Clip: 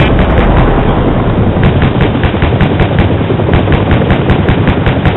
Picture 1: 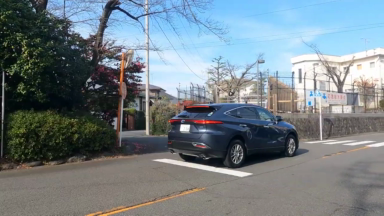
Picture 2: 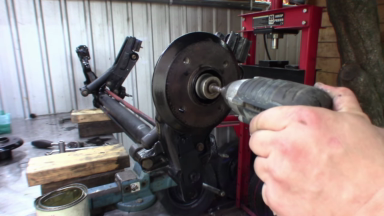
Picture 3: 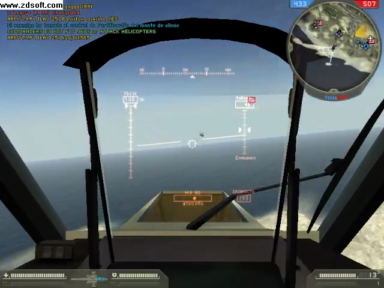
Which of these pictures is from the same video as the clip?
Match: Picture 3